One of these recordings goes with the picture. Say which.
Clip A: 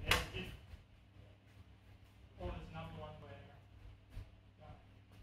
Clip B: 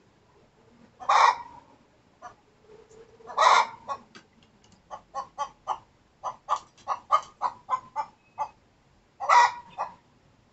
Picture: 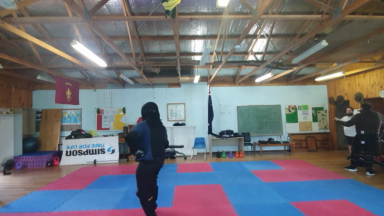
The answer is A